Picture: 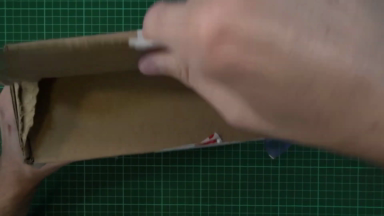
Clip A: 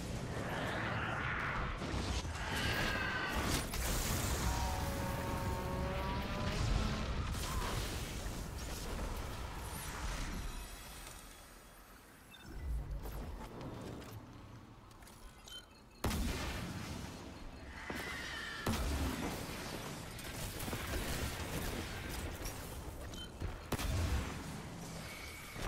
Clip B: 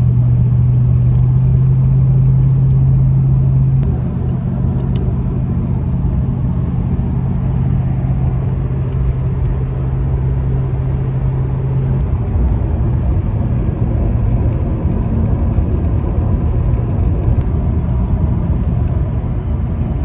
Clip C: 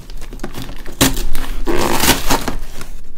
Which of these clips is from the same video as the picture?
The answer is C